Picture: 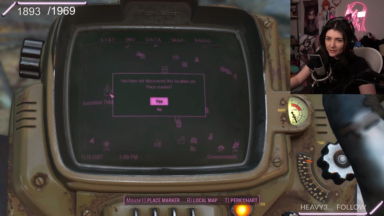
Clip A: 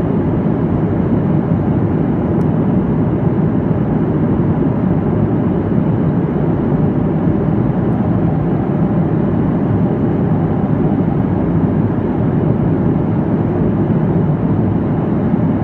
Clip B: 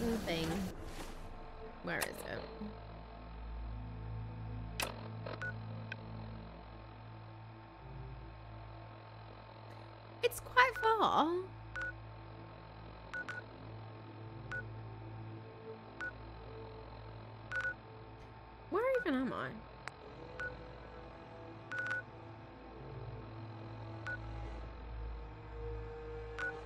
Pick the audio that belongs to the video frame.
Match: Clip B